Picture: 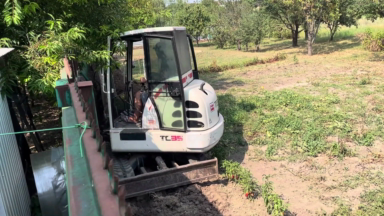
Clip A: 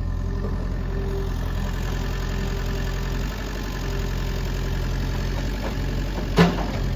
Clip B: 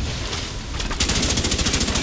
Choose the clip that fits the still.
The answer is A